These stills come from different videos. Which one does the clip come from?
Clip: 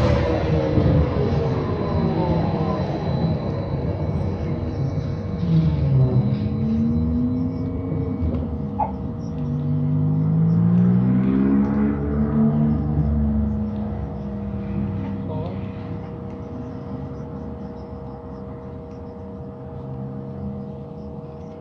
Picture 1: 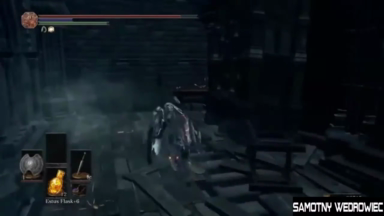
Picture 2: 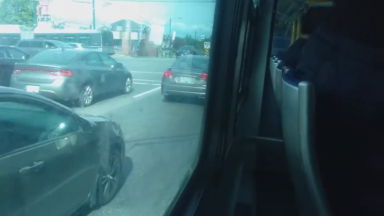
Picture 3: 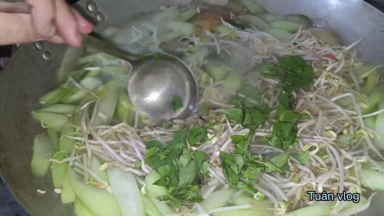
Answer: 2